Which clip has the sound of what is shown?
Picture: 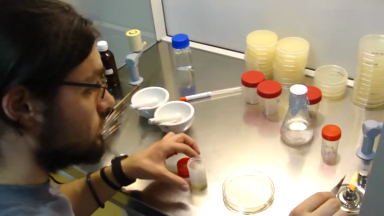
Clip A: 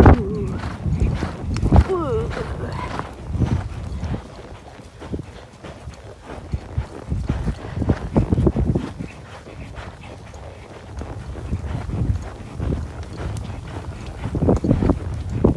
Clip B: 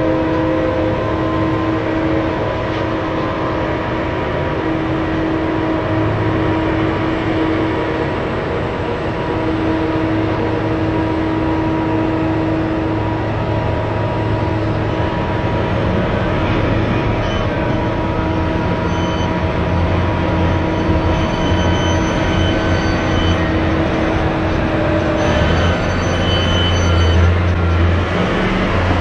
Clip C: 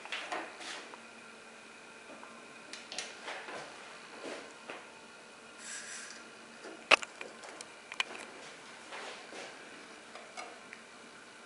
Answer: C